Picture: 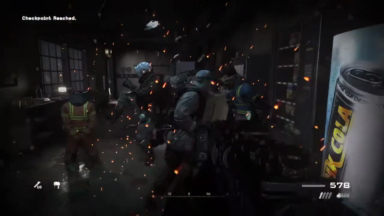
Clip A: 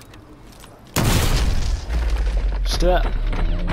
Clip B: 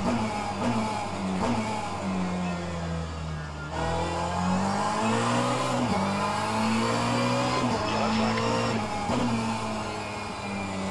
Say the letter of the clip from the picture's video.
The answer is A